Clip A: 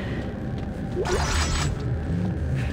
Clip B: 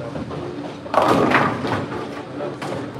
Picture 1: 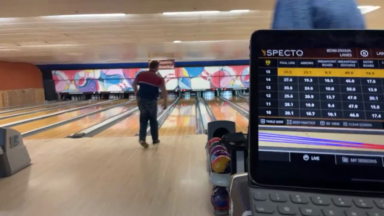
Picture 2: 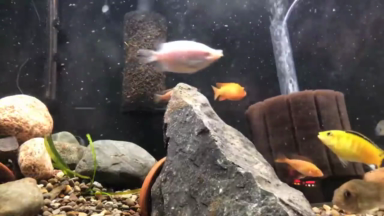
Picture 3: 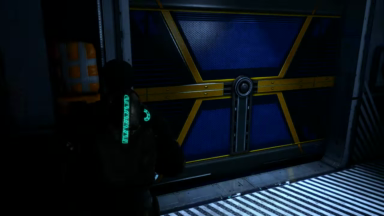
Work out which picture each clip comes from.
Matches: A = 3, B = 1